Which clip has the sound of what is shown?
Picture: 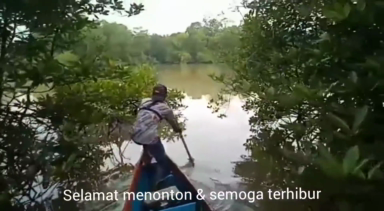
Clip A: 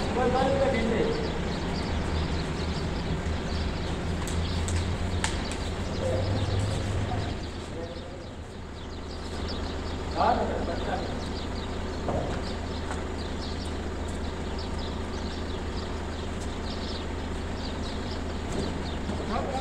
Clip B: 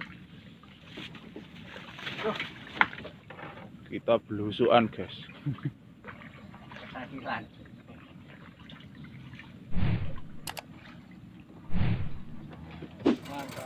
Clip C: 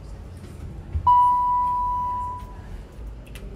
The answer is B